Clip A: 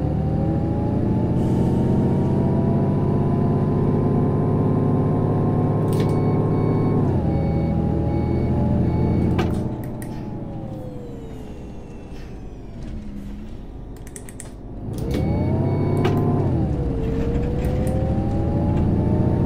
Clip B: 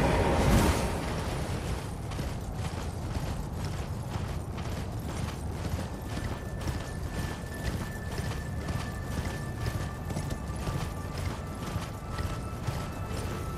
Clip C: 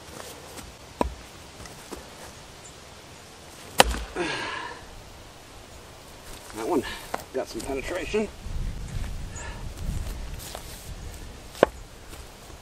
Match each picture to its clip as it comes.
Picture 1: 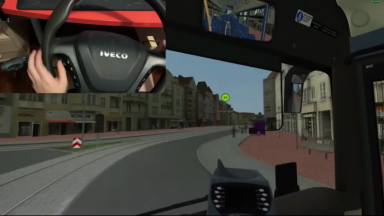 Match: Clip A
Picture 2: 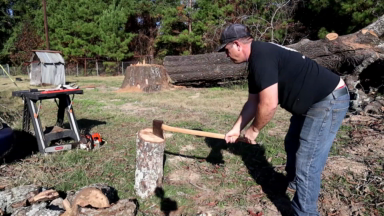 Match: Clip C